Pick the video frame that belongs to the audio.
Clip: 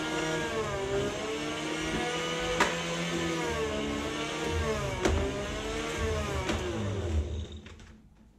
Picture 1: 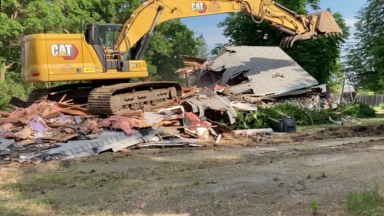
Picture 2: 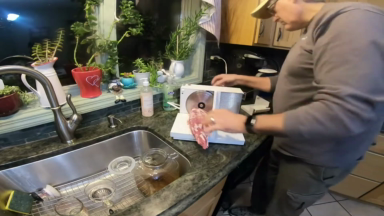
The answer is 2